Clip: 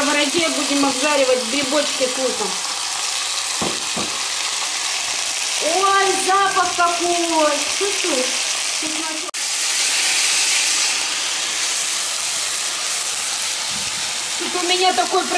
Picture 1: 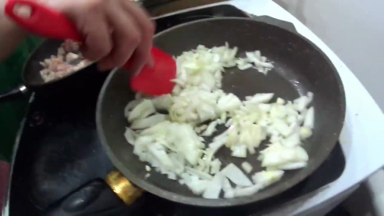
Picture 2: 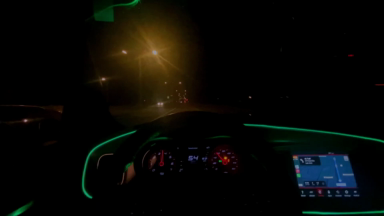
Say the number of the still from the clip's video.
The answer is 1